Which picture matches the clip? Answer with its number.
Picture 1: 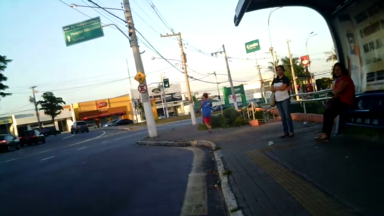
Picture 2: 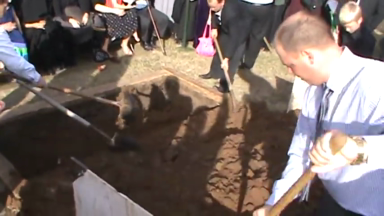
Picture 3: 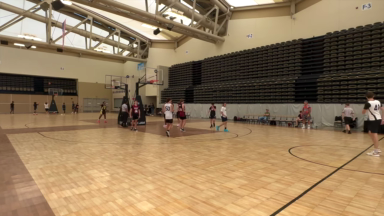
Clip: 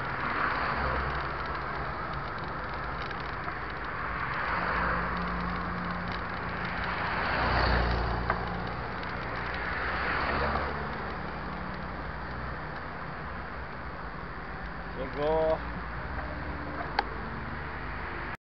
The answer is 1